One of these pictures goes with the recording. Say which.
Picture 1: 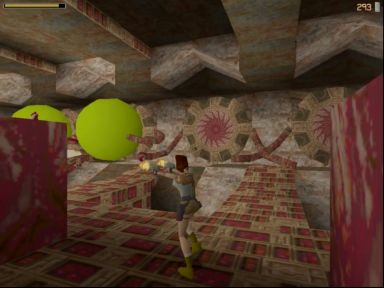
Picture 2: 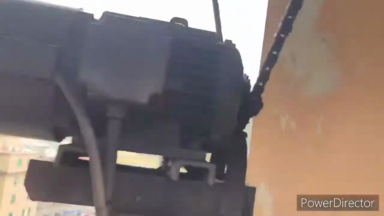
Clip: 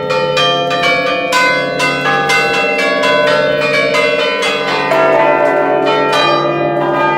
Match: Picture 2